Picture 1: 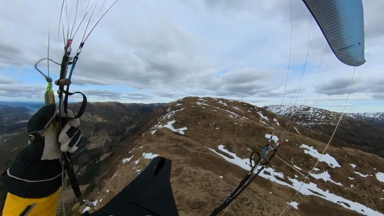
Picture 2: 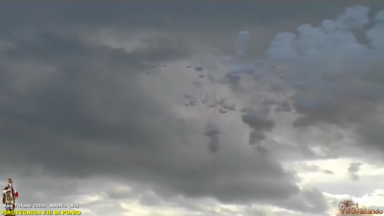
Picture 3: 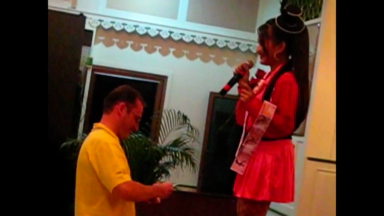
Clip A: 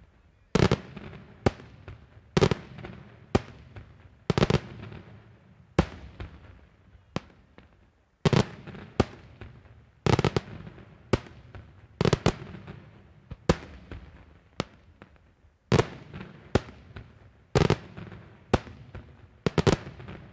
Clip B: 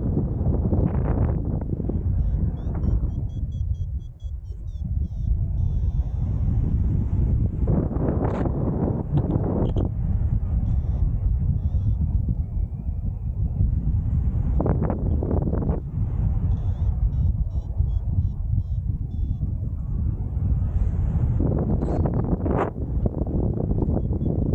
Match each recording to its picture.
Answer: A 2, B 1